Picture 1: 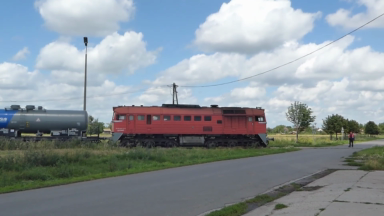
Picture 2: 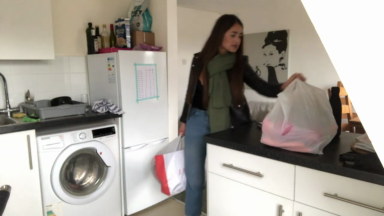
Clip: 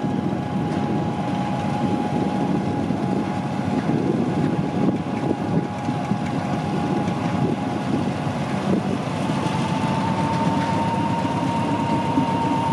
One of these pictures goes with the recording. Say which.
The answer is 1